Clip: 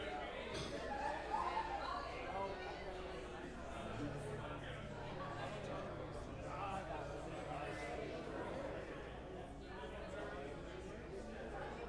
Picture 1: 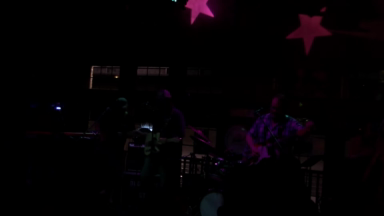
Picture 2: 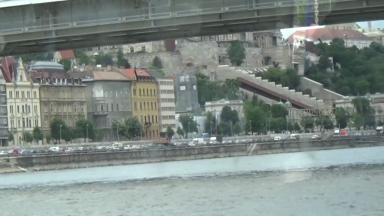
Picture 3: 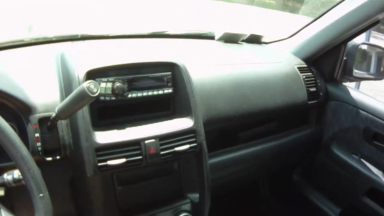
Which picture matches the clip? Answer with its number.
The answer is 1